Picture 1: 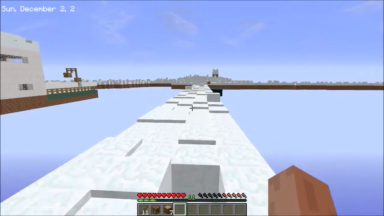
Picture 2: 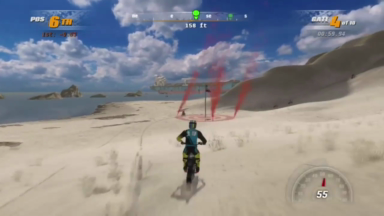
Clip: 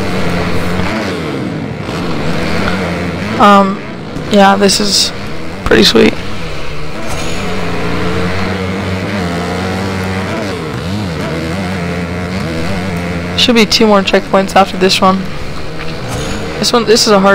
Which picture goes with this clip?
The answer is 2